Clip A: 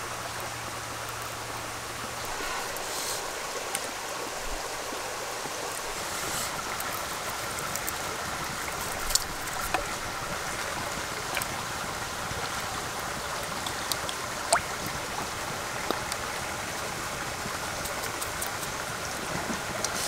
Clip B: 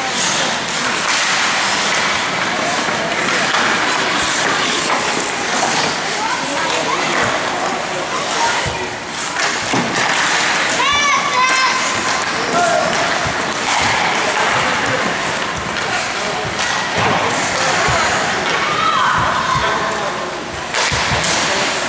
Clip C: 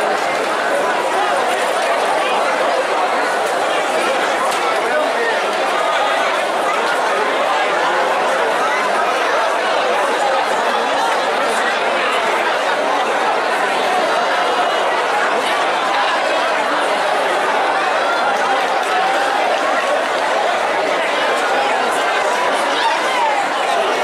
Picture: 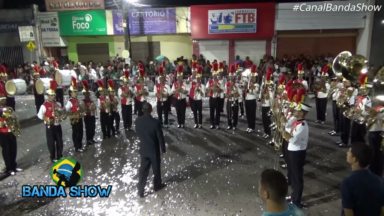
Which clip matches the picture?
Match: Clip C